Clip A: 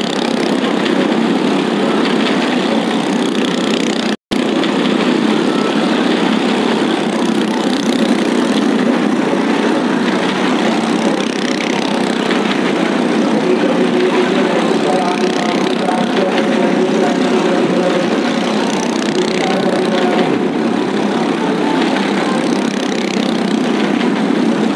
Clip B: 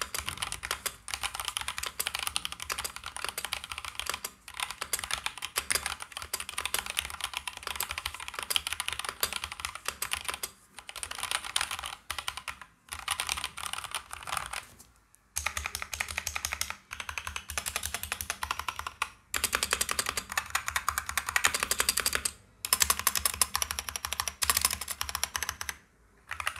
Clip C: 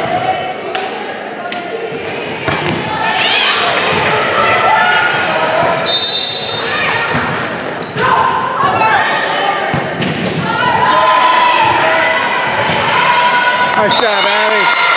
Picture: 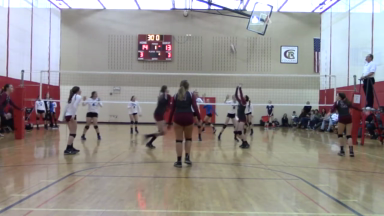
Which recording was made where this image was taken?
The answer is C